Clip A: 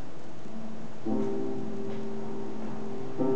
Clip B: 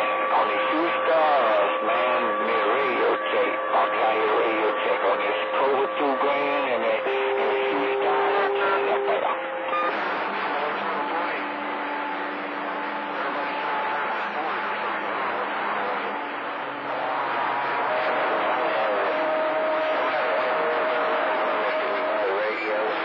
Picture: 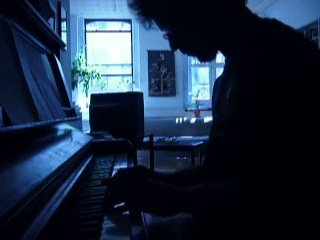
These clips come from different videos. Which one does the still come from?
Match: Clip A